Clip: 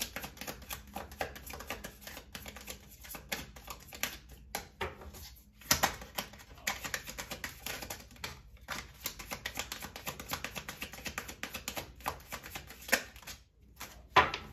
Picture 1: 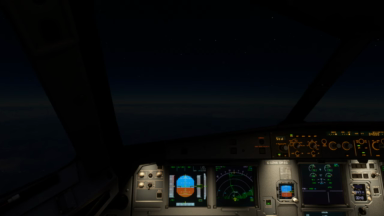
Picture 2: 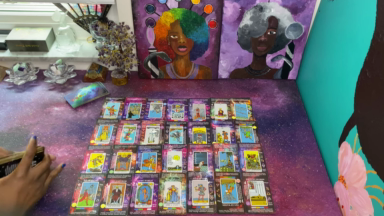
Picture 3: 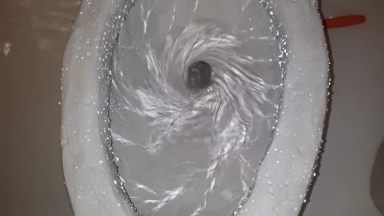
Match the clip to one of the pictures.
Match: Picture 2